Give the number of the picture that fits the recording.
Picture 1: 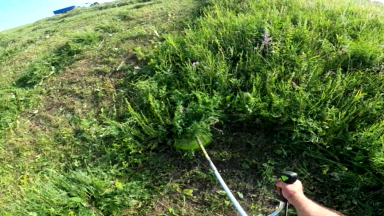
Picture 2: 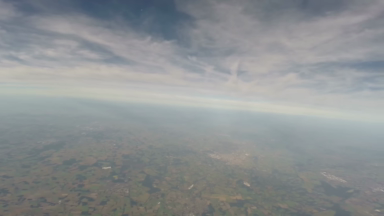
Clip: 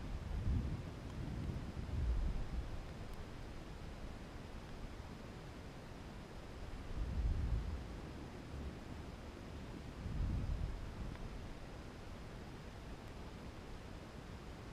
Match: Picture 2